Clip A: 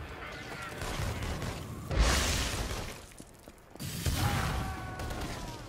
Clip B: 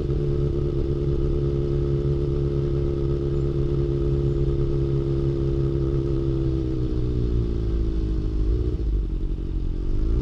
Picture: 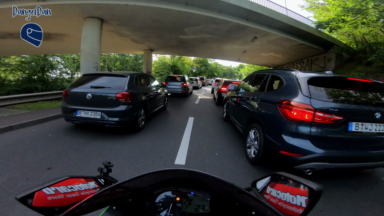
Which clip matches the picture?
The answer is B